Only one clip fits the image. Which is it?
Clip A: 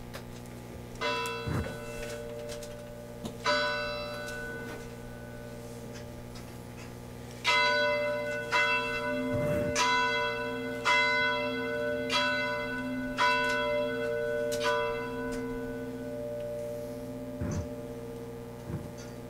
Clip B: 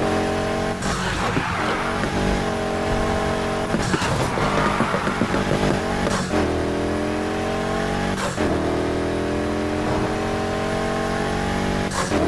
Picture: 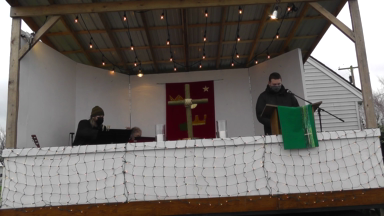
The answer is A